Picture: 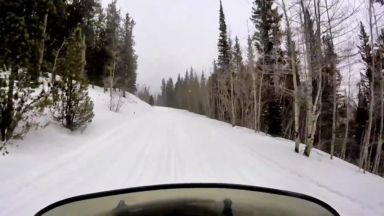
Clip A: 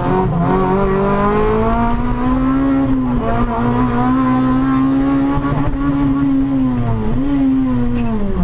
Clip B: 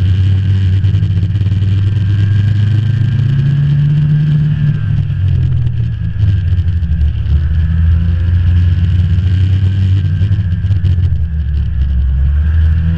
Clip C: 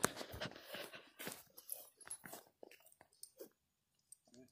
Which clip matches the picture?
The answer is B